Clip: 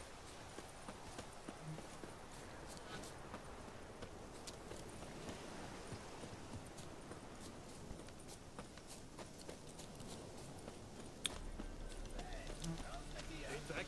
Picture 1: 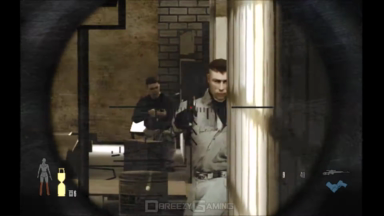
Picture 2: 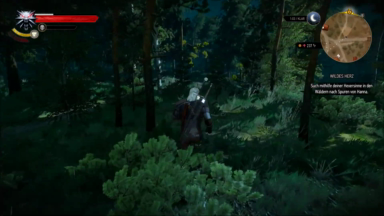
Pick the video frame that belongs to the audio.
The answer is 2